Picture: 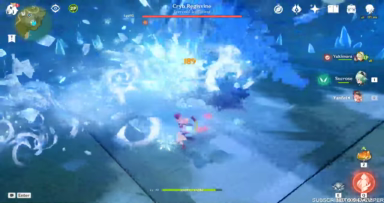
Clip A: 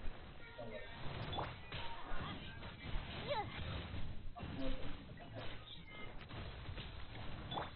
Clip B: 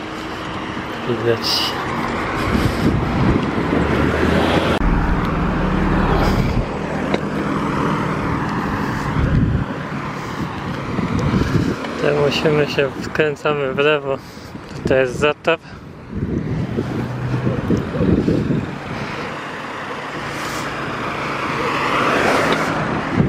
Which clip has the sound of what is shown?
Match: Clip A